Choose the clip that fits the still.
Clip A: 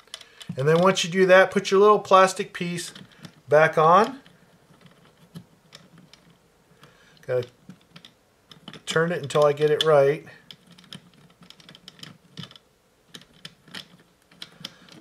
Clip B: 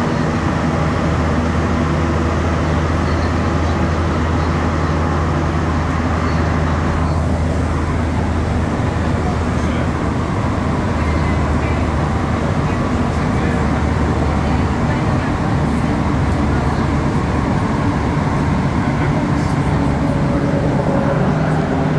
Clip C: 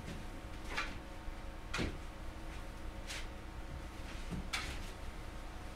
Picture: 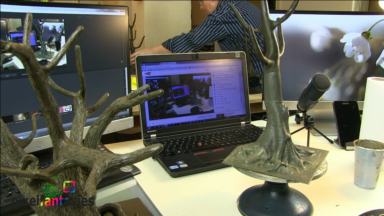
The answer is C